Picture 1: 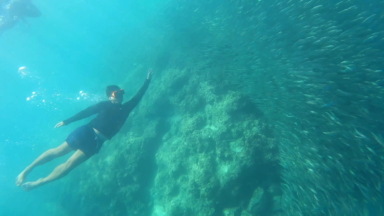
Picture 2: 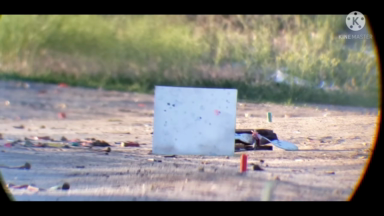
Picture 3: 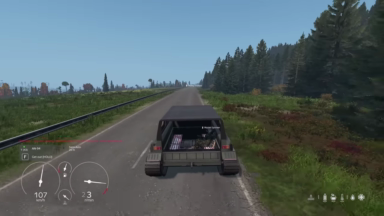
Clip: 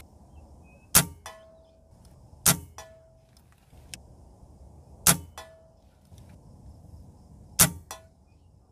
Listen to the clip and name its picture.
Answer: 2